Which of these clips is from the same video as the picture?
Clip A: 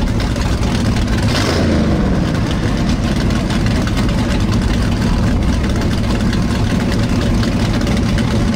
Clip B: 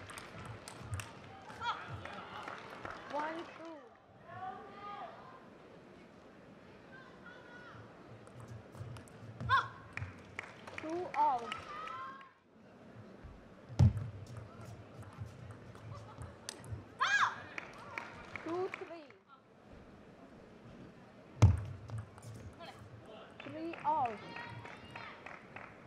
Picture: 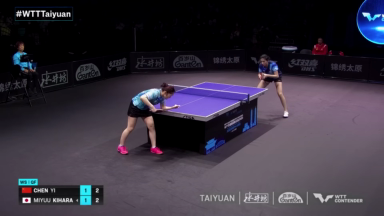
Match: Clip B